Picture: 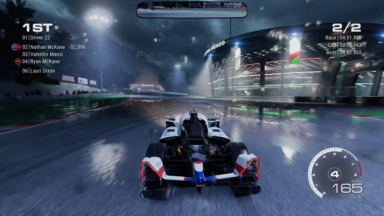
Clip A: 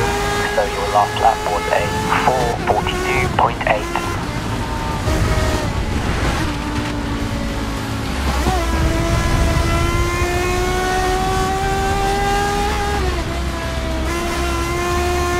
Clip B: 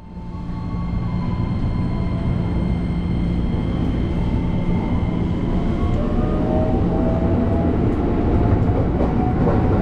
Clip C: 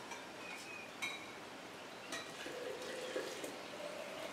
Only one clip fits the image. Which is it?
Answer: A